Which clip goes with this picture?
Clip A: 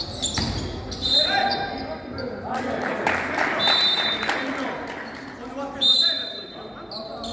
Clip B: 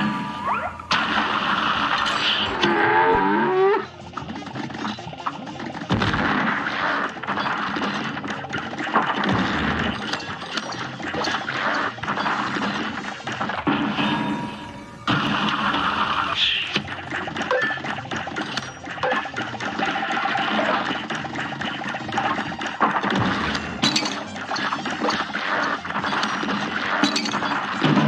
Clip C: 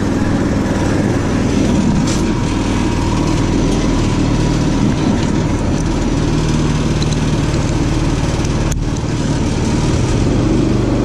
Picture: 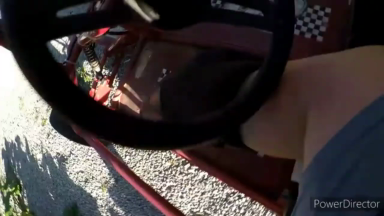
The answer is C